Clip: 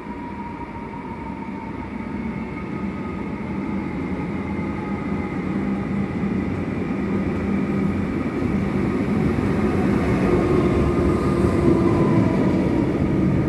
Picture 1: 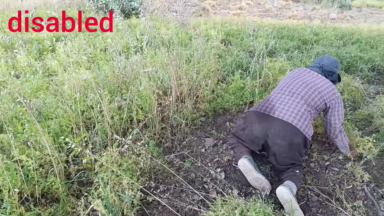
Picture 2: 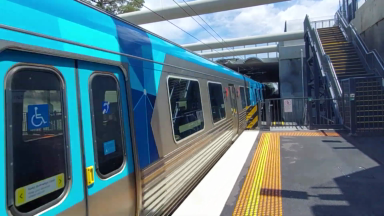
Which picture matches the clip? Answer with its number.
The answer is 2